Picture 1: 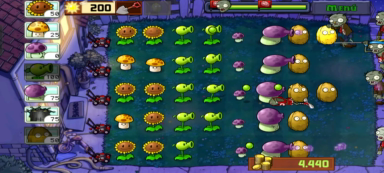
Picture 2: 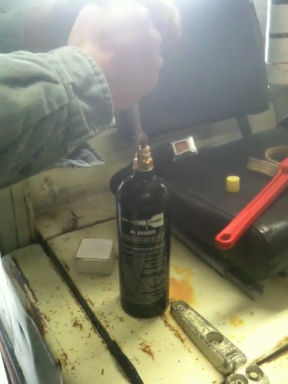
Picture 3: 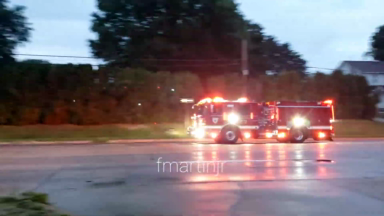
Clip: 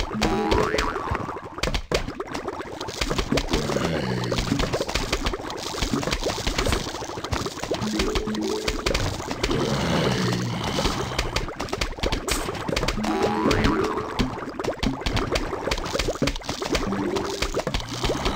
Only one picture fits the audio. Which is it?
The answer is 1